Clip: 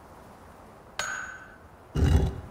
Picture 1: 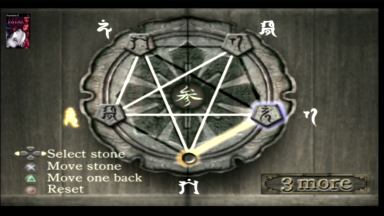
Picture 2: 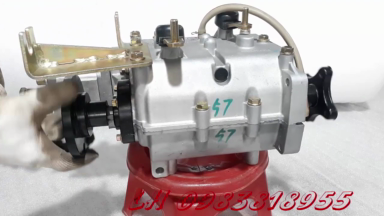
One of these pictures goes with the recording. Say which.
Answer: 1